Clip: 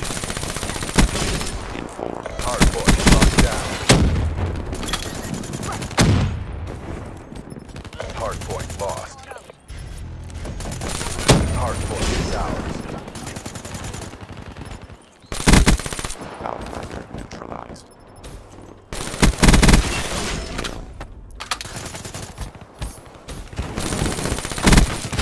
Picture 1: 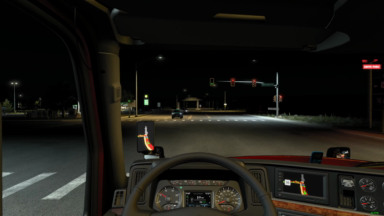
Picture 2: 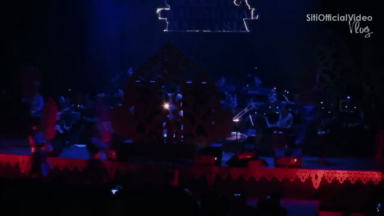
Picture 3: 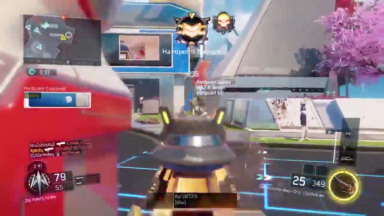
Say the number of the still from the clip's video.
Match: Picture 3